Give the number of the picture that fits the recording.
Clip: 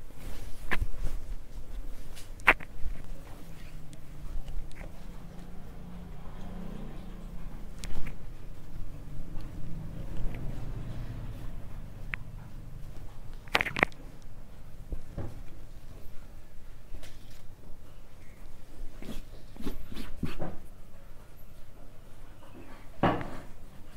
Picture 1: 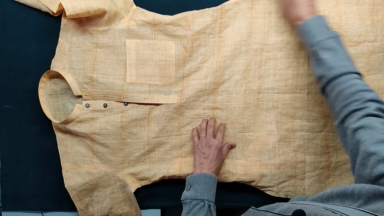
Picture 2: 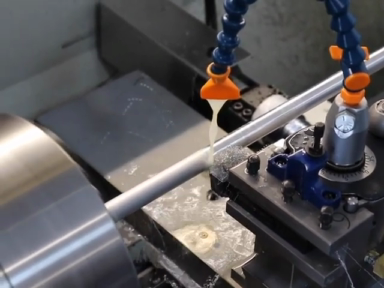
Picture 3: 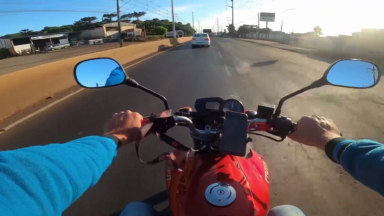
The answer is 1